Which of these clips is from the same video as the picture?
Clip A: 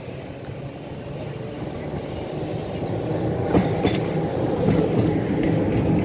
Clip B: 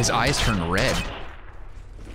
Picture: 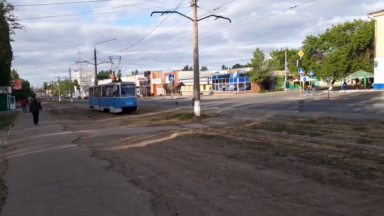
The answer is A